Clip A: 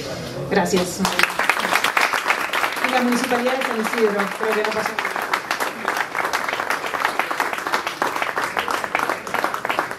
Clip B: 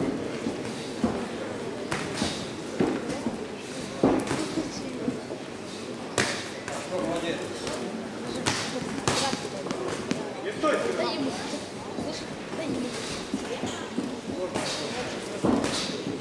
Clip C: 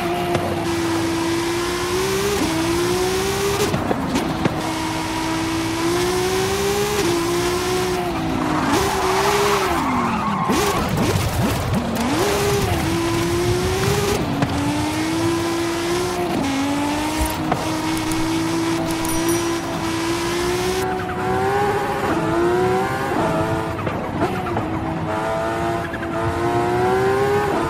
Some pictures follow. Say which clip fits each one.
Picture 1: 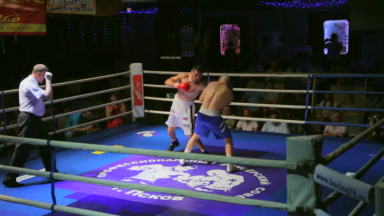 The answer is B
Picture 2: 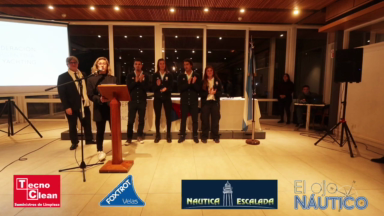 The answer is A